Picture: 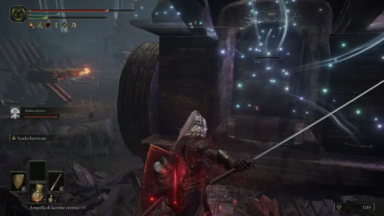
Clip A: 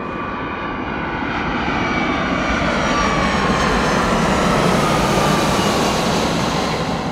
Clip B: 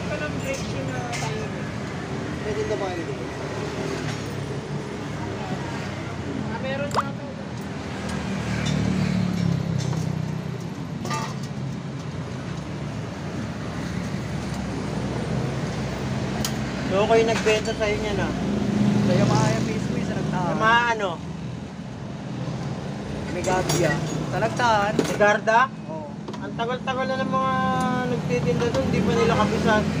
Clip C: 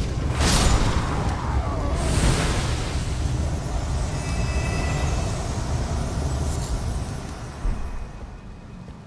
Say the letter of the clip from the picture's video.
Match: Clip C